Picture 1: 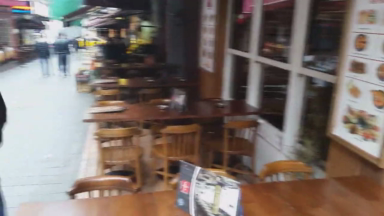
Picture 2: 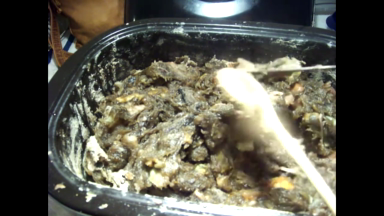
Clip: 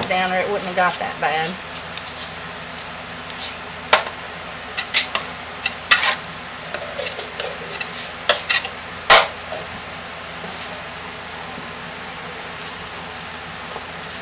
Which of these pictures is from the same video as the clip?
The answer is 2